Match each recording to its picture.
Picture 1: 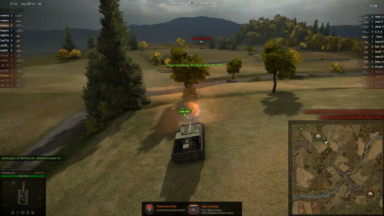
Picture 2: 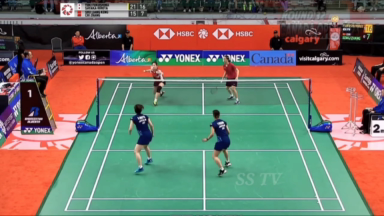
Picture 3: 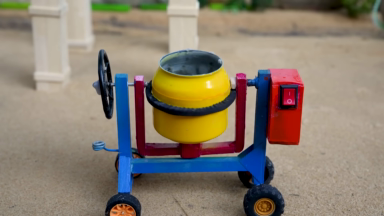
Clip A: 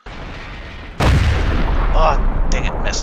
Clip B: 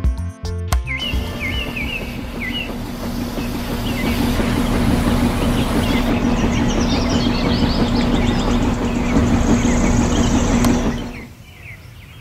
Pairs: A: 1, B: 3